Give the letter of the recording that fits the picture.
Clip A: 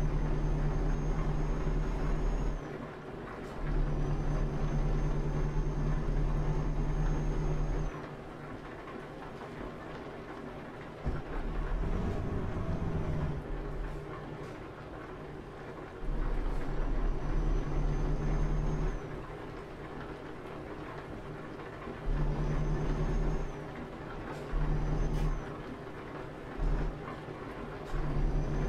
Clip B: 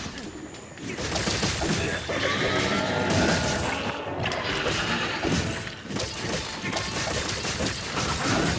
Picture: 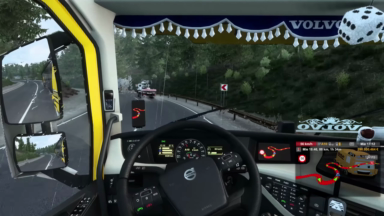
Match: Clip A